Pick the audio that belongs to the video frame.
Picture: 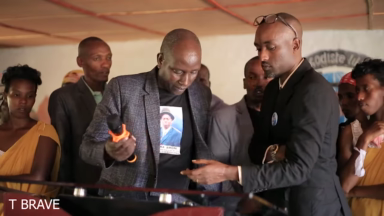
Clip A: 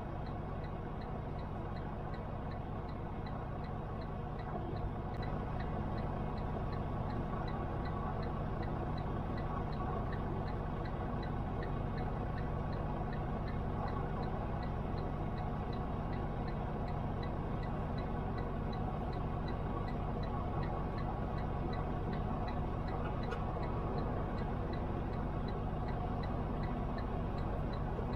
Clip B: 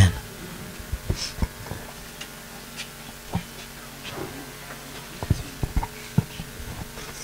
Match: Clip B